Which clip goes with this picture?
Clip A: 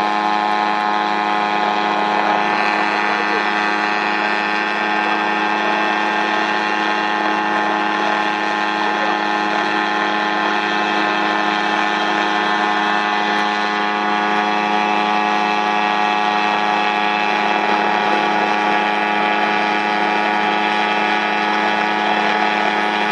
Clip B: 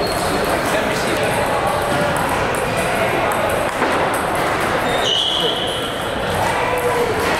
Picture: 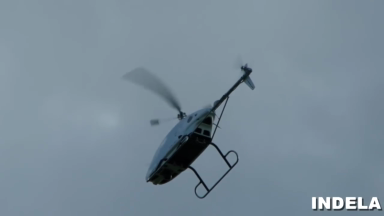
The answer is A